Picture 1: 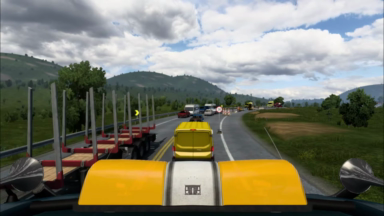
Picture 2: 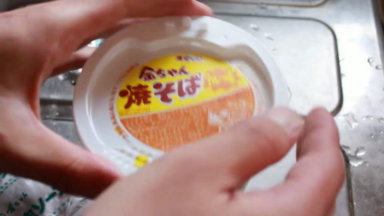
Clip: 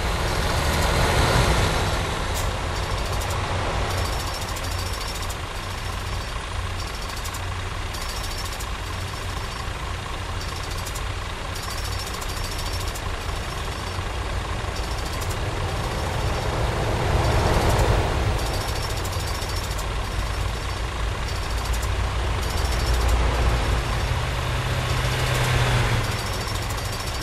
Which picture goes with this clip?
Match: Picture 1